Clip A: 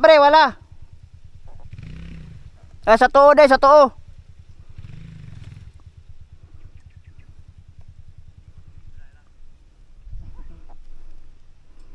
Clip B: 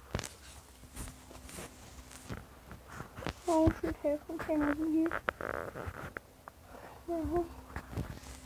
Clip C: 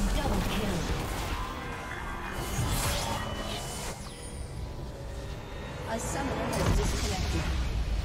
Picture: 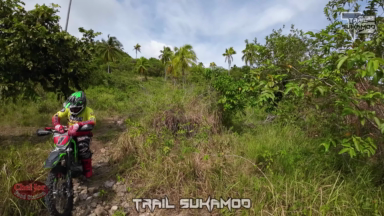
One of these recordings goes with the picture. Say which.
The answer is A